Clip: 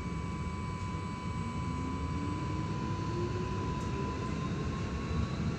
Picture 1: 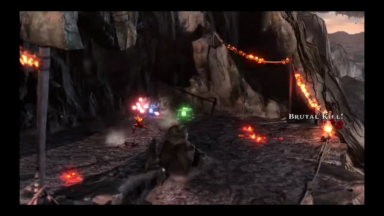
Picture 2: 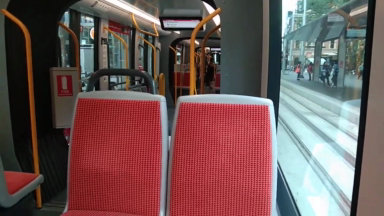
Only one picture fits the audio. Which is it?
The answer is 2